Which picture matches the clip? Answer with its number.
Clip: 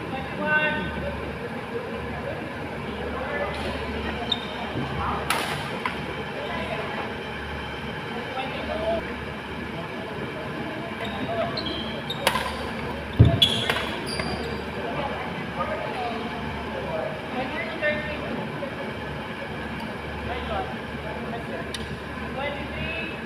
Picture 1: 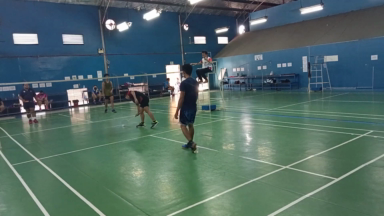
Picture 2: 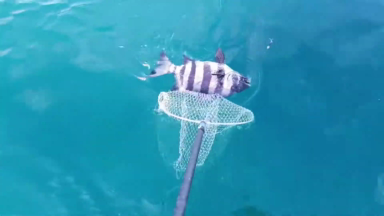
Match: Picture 1